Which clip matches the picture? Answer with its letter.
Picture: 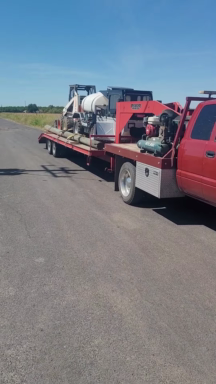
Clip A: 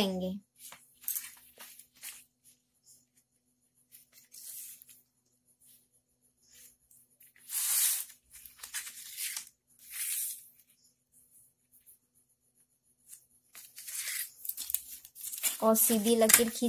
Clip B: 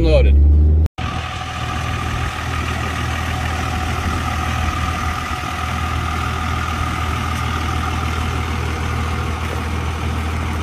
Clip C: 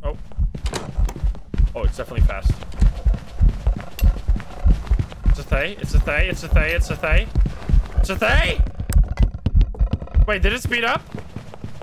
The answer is B